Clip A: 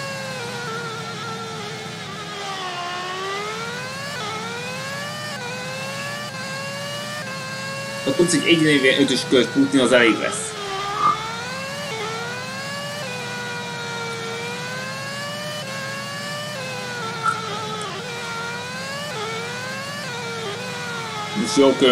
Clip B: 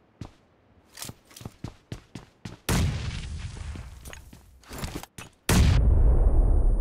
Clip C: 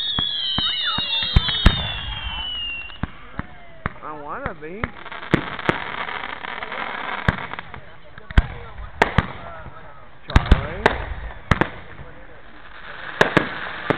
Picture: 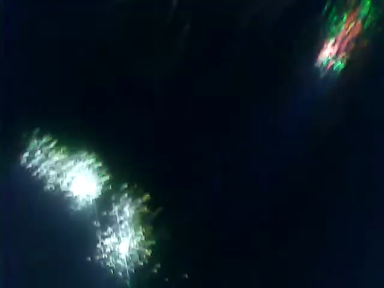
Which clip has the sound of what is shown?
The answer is C